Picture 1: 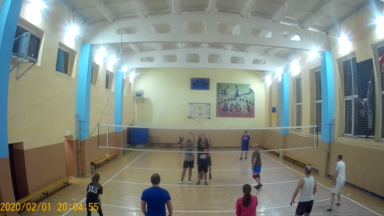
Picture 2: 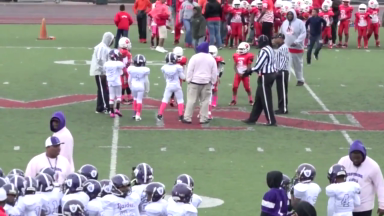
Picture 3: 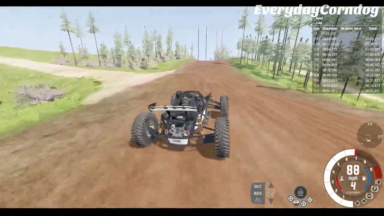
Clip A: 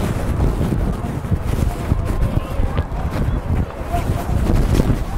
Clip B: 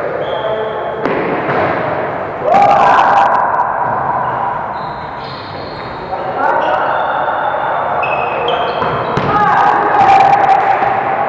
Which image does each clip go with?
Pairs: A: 2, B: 1